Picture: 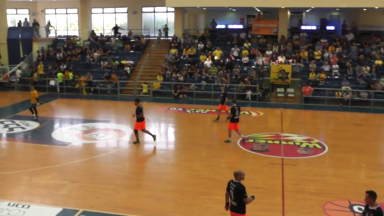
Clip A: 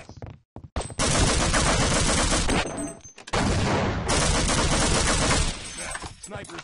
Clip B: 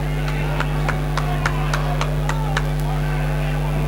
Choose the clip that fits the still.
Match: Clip B